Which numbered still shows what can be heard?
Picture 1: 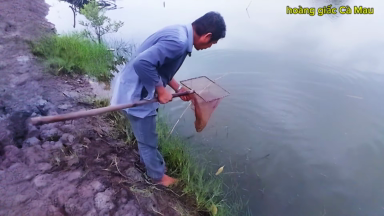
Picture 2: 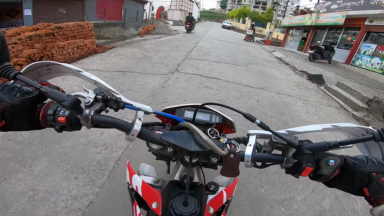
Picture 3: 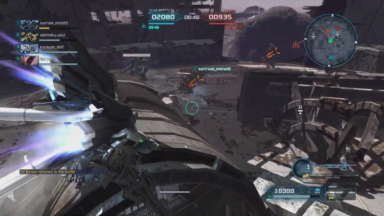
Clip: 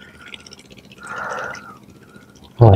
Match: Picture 1